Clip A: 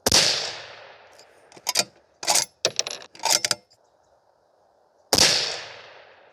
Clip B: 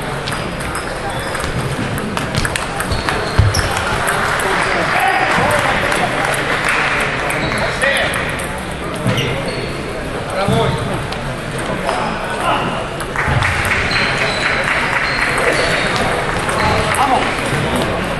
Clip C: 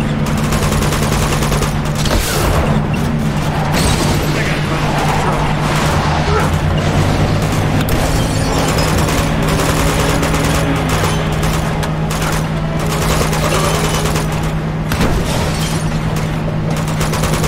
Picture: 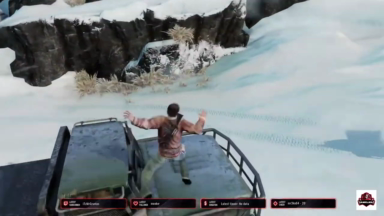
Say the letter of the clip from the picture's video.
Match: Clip C